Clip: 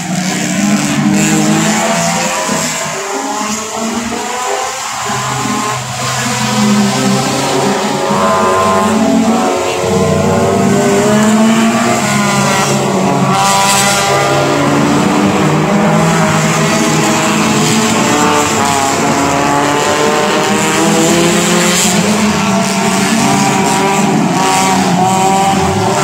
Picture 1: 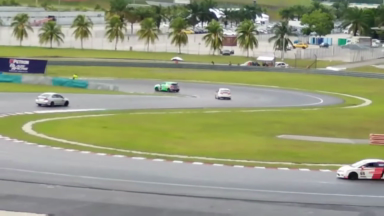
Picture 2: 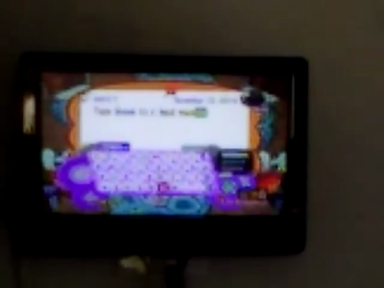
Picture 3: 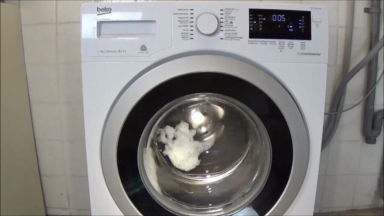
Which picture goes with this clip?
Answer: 1